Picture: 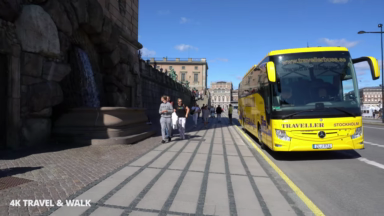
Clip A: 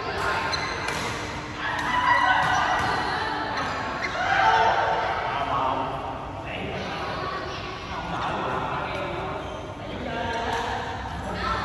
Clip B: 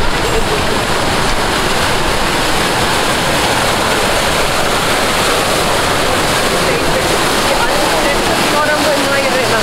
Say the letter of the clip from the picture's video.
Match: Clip B